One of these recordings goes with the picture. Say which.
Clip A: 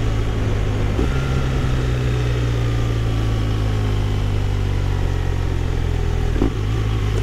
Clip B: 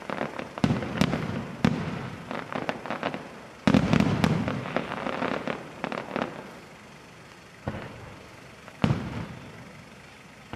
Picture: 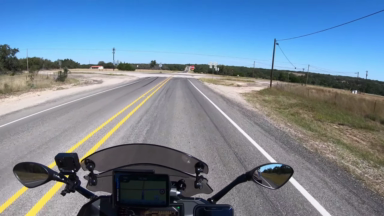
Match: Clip A